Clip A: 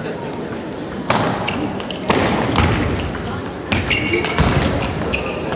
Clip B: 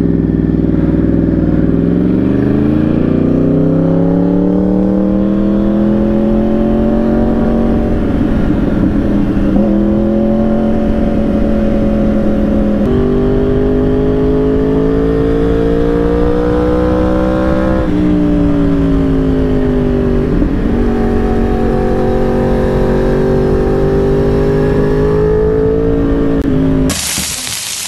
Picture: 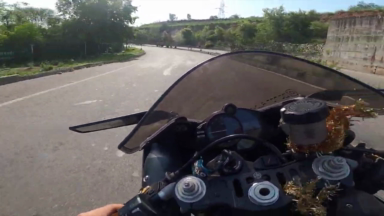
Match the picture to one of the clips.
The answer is B